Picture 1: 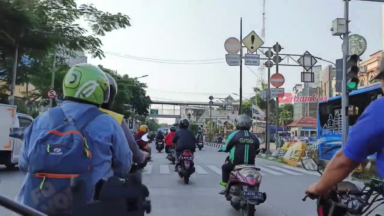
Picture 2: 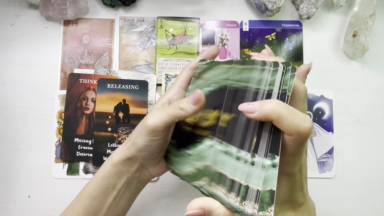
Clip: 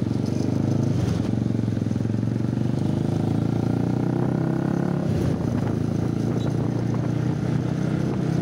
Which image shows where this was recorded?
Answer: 1